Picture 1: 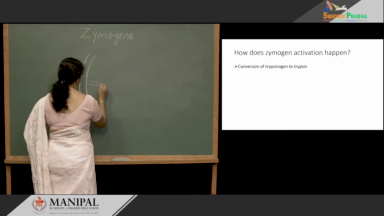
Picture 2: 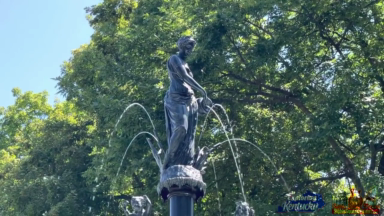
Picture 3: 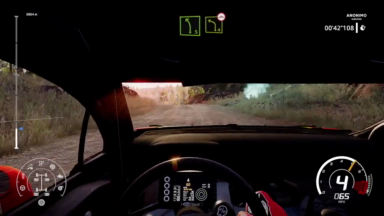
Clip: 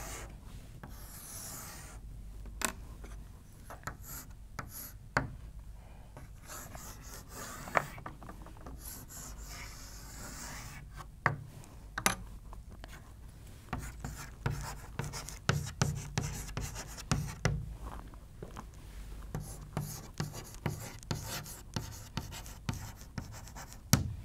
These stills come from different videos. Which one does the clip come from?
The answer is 1